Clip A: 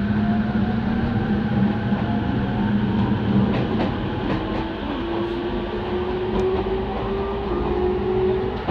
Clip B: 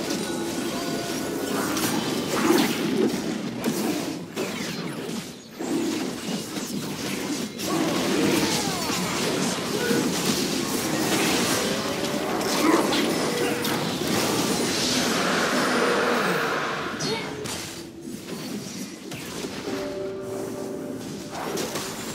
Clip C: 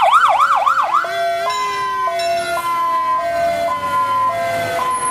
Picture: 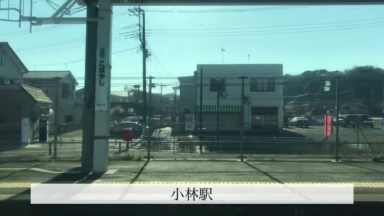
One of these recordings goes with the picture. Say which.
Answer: A